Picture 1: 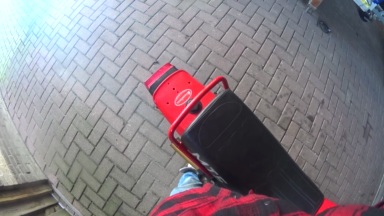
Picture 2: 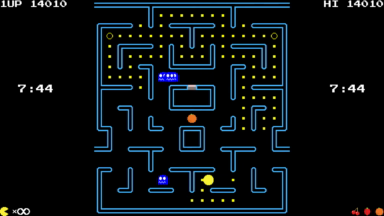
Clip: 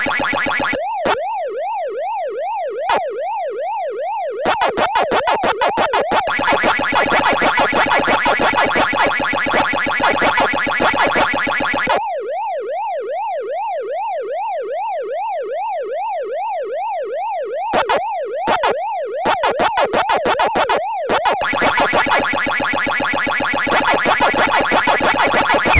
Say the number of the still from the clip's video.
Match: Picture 2